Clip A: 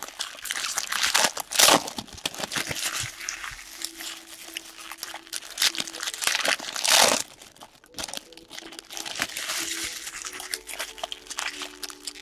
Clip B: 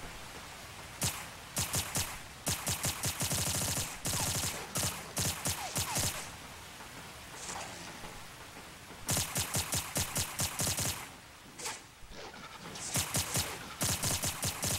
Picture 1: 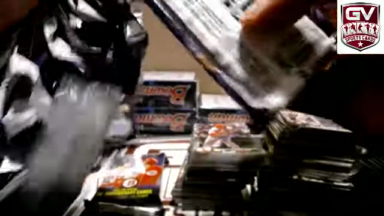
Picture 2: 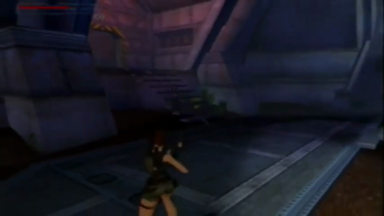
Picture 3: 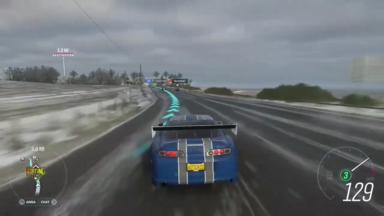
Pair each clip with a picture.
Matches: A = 1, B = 2